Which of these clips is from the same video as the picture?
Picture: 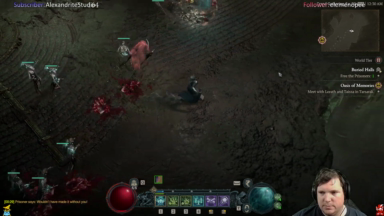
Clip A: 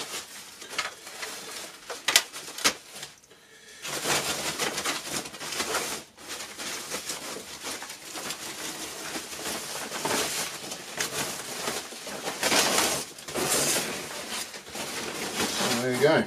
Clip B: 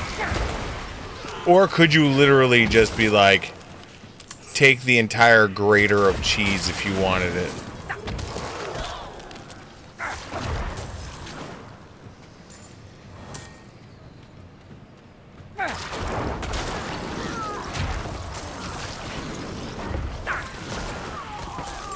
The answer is B